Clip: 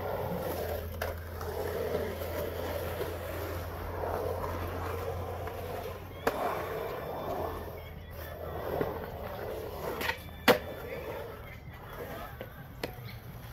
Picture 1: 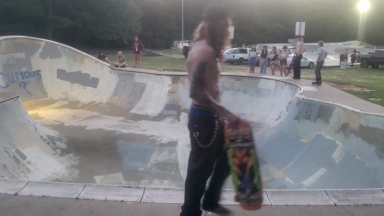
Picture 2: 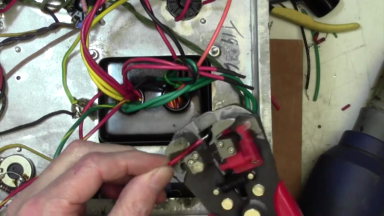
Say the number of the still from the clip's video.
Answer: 1